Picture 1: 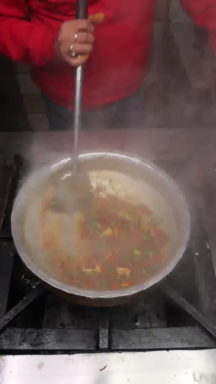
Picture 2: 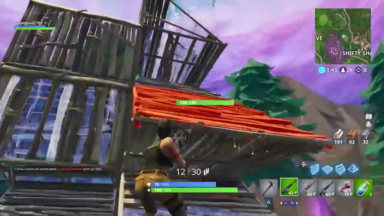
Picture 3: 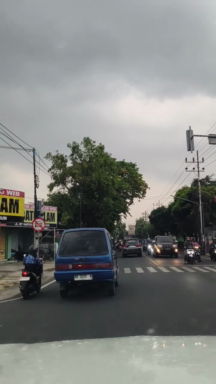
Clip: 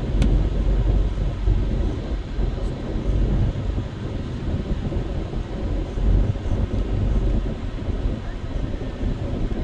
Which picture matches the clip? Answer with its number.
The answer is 3